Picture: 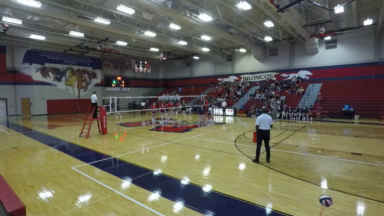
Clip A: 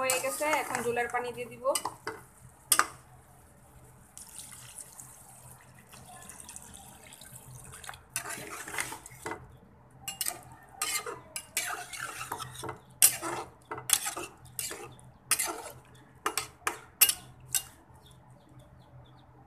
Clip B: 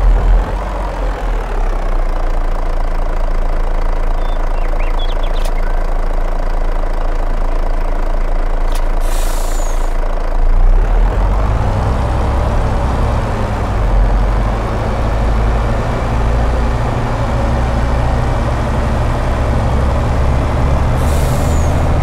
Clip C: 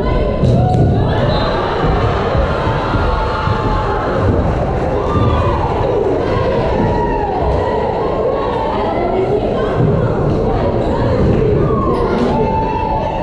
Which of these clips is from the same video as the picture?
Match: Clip C